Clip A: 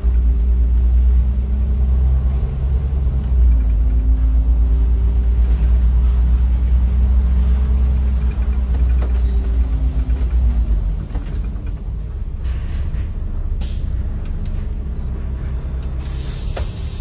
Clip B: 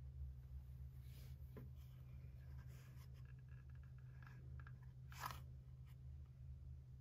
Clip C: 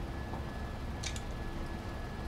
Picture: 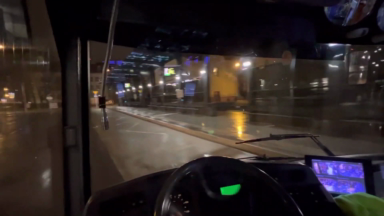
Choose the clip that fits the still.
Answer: A